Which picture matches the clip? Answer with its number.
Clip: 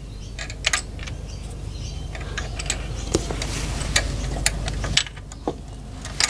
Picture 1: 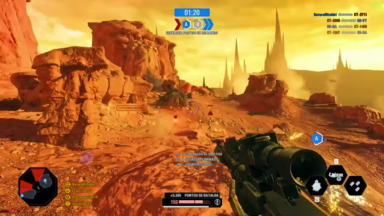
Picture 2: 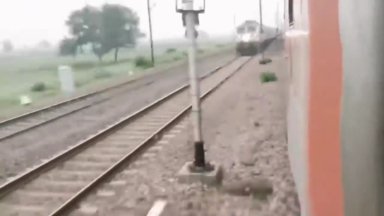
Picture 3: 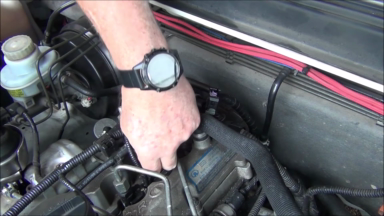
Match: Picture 3